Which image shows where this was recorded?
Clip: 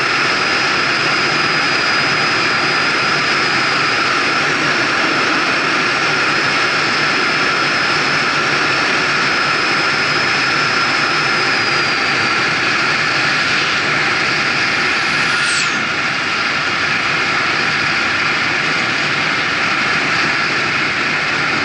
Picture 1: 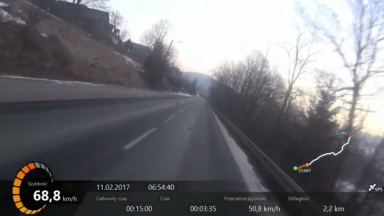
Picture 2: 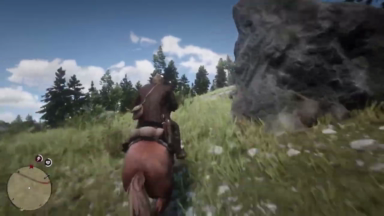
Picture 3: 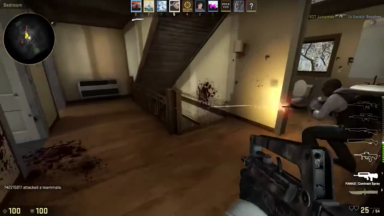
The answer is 1